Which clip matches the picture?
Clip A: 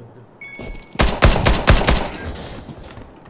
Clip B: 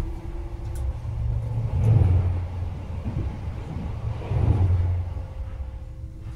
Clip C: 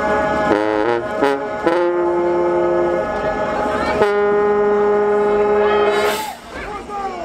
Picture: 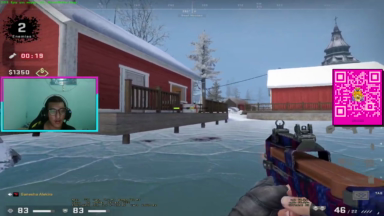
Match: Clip A